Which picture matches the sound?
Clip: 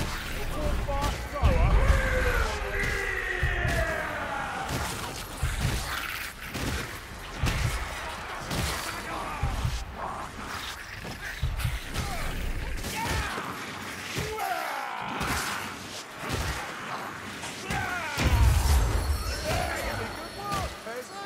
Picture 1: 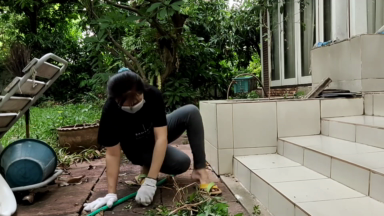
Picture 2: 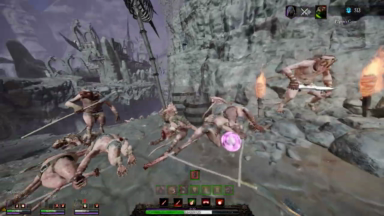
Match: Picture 2